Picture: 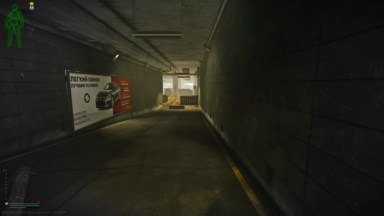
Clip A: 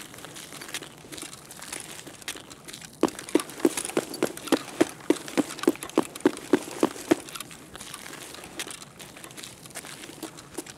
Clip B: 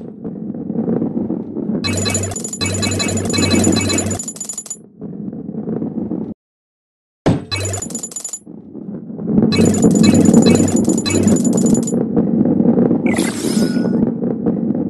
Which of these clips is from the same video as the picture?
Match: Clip A